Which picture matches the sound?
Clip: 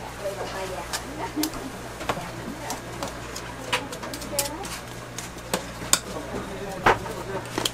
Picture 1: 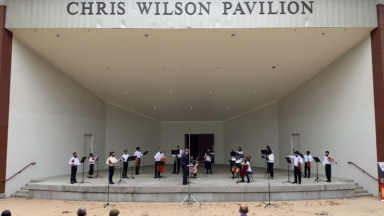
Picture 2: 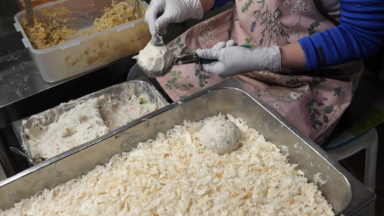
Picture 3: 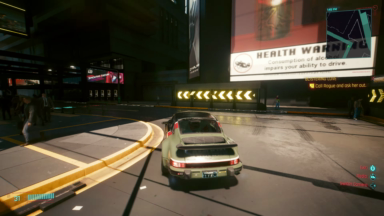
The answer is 2